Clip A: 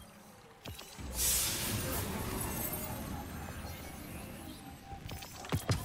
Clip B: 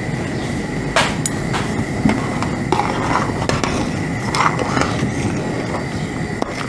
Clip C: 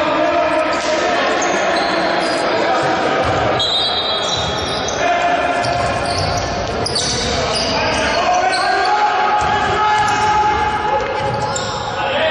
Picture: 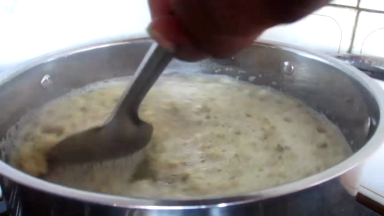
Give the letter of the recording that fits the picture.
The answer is B